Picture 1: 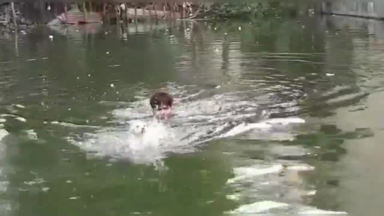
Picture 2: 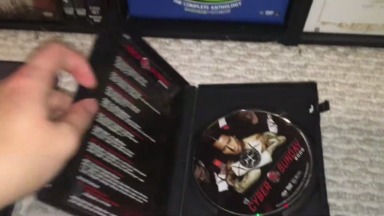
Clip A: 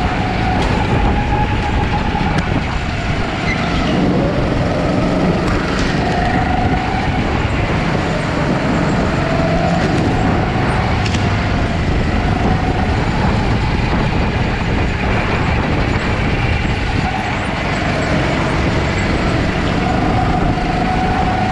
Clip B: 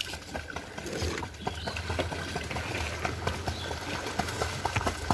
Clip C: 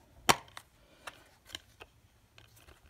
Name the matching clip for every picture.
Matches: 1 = B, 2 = C